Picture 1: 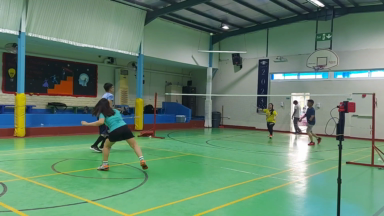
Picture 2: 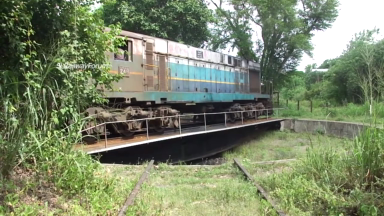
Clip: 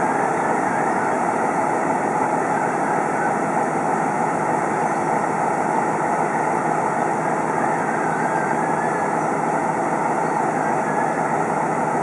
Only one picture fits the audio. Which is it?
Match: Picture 2